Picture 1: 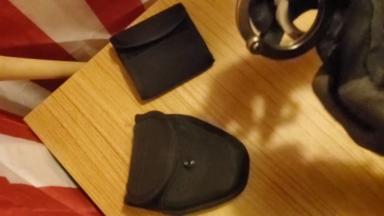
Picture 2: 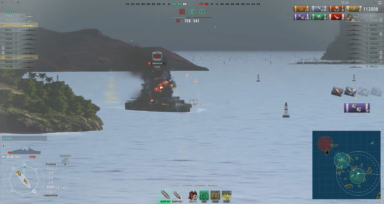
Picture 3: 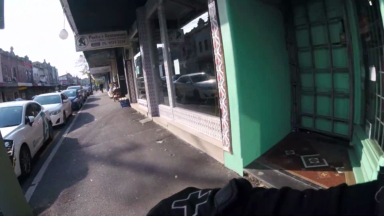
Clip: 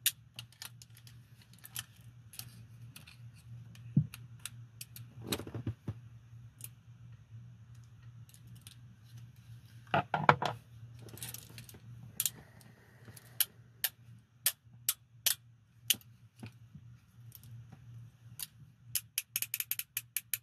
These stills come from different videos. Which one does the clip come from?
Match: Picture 1